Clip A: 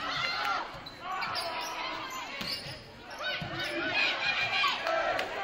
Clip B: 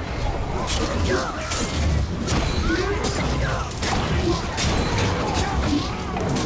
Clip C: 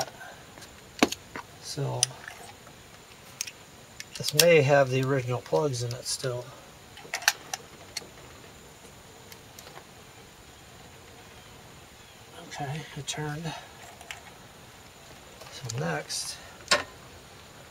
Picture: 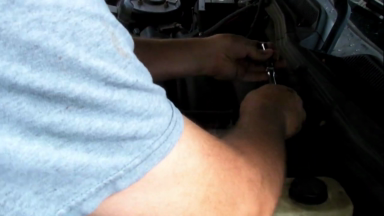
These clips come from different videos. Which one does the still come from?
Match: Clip C